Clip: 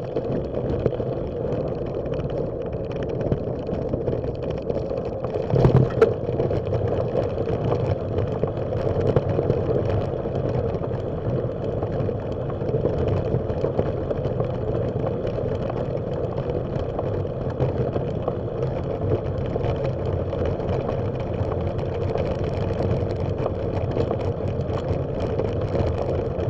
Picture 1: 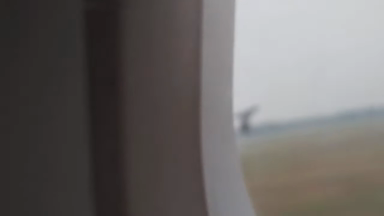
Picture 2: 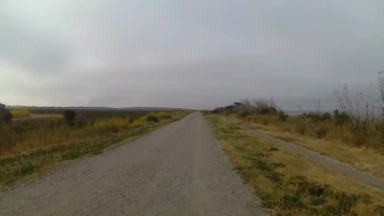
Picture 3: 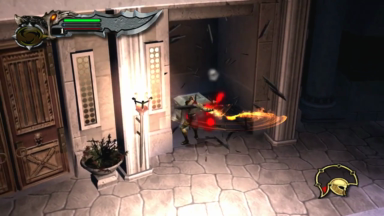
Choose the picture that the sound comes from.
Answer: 2